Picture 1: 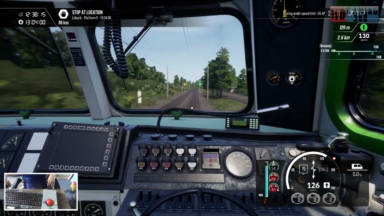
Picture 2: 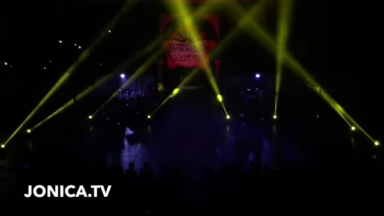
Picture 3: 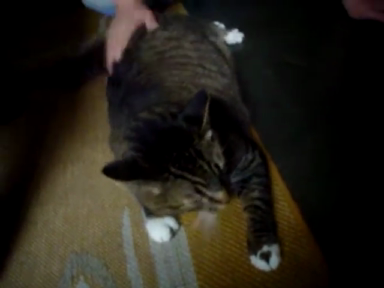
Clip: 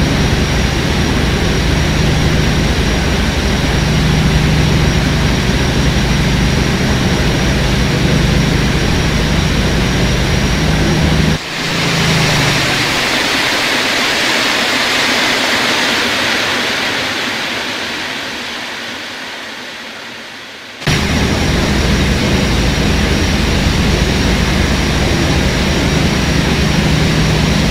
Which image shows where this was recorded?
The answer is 1